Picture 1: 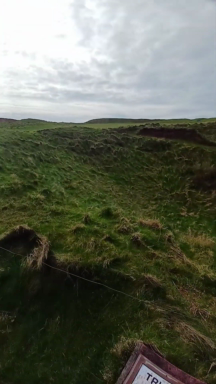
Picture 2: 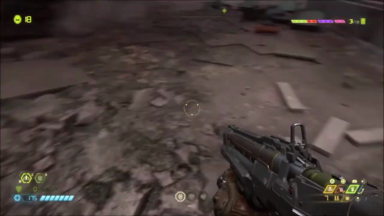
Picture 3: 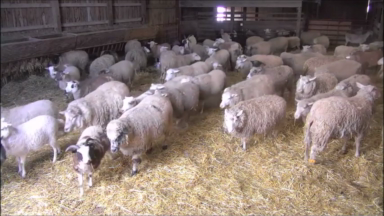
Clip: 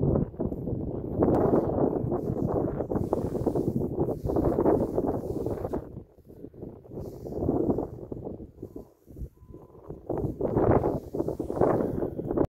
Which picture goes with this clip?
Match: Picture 1